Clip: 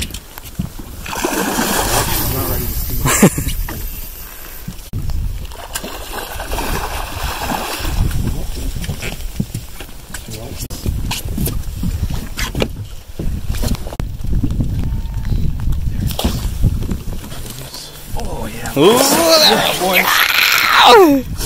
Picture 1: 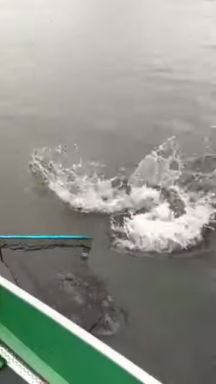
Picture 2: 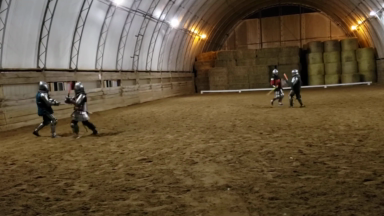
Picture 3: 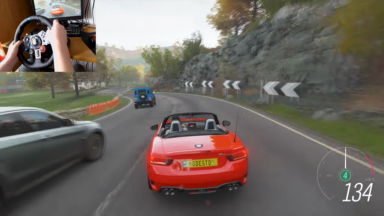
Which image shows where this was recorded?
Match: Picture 1